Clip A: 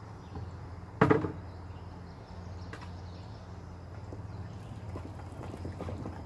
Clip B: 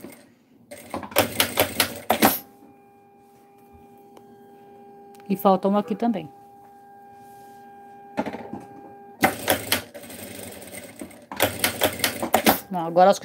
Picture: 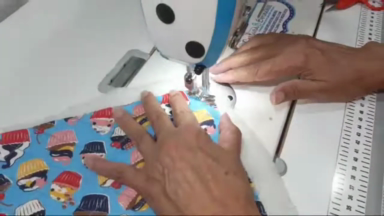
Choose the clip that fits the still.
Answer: B